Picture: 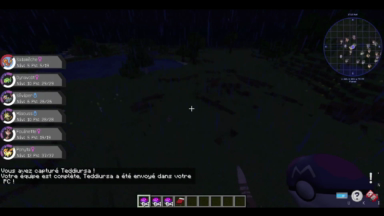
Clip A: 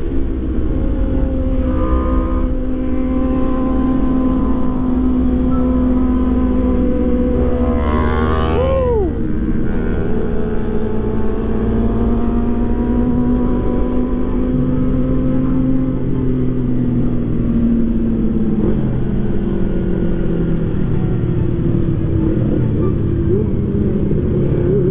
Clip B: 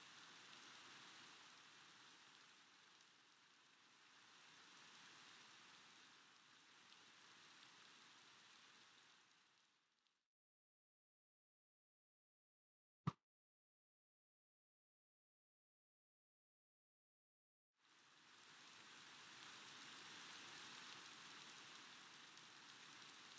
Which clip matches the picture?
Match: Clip B